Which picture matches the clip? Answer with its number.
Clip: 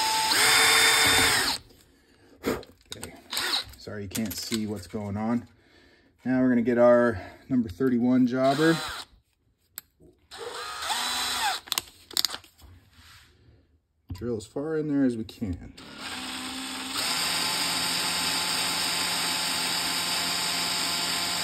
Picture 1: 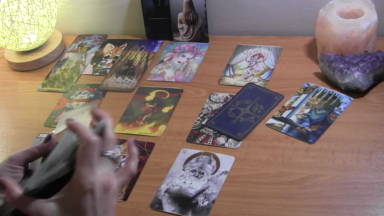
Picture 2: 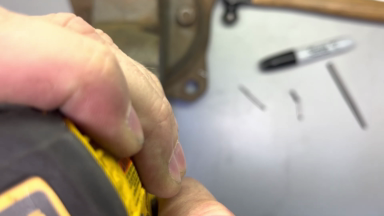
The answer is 2